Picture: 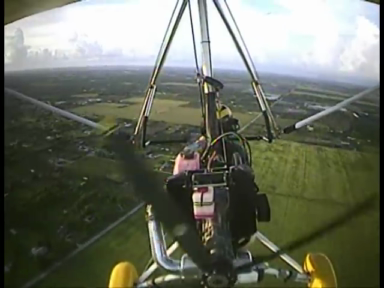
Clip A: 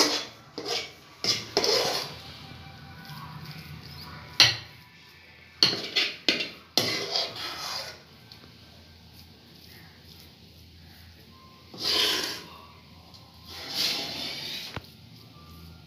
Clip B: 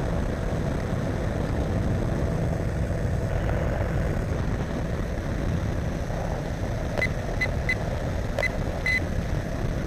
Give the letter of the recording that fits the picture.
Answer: B